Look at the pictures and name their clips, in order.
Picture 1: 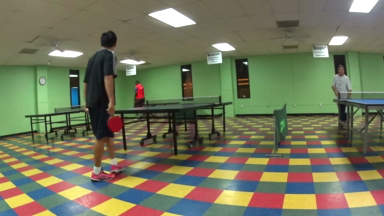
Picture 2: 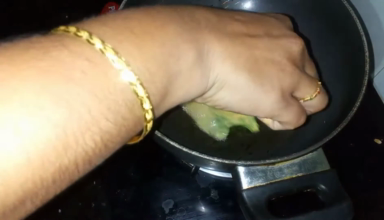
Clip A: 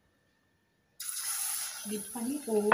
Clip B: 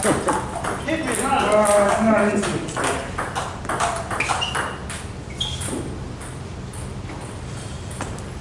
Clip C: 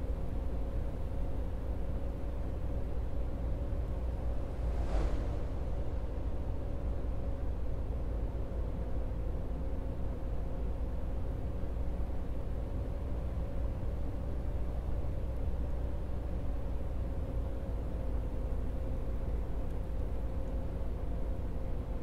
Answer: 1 B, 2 A